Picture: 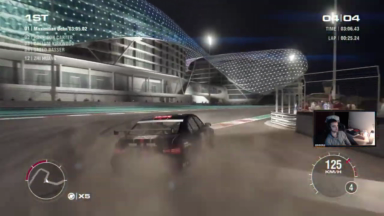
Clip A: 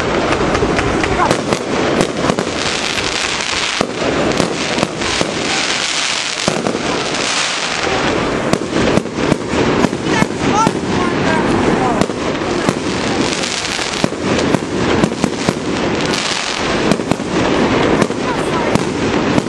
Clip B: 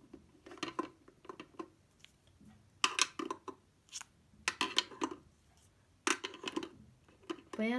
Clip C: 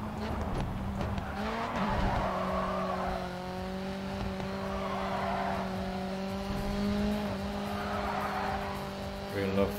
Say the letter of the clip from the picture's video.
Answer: C